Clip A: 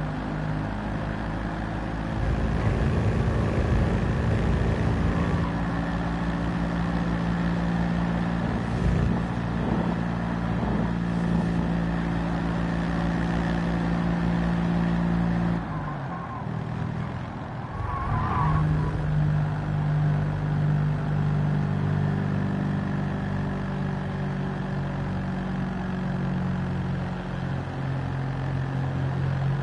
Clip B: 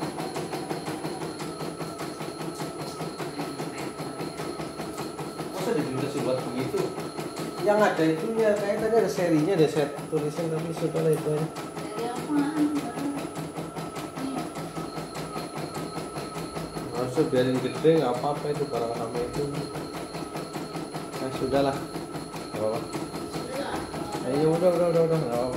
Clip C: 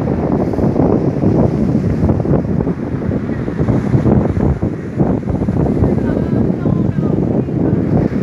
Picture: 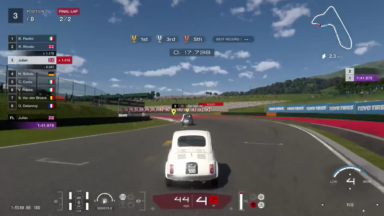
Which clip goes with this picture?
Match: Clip A